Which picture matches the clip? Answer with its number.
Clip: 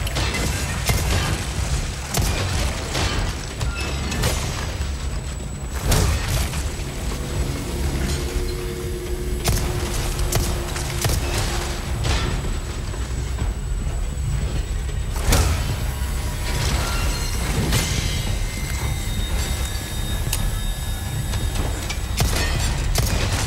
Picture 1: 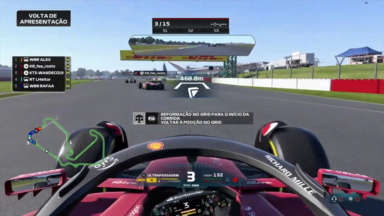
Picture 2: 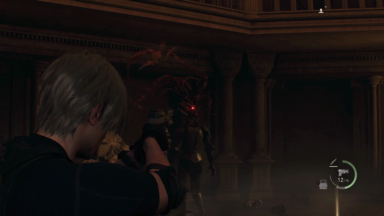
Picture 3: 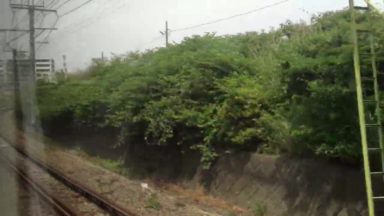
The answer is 2